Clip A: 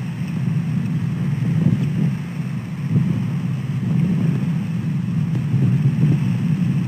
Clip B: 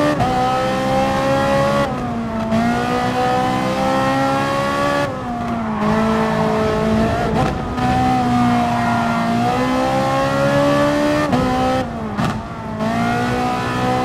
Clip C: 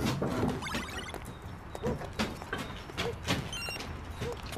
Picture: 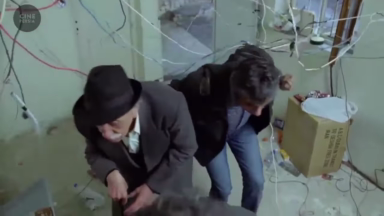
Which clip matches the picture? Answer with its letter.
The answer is C